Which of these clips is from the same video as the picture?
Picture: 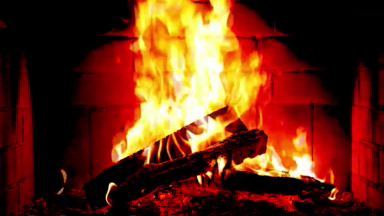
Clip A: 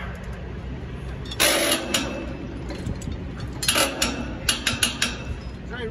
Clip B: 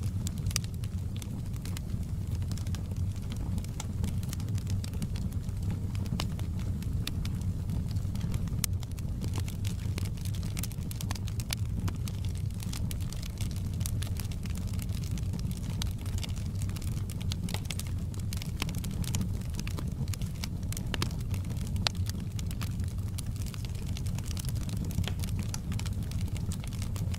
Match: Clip B